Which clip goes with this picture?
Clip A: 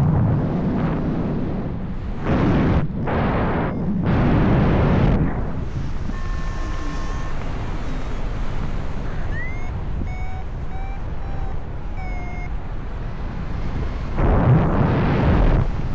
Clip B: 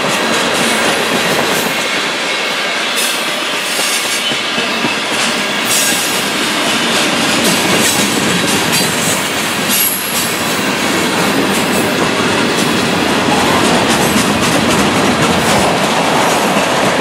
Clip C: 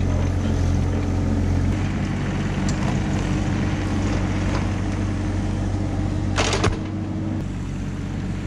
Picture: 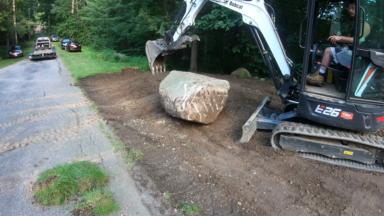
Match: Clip C